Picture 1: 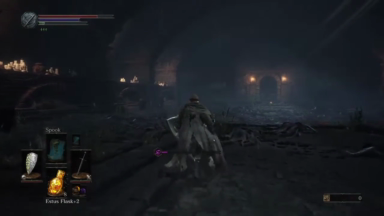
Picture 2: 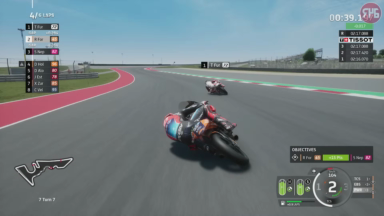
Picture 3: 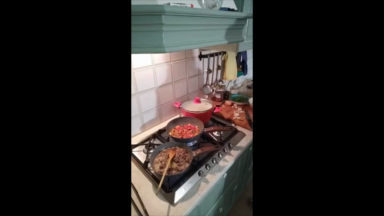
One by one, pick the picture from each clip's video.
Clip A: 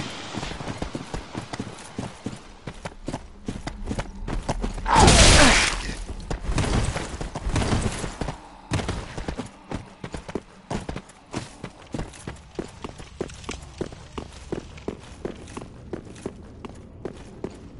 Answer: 1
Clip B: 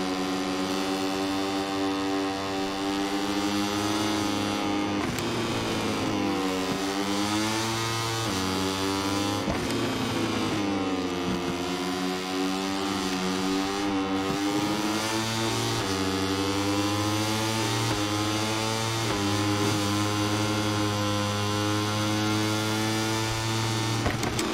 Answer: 2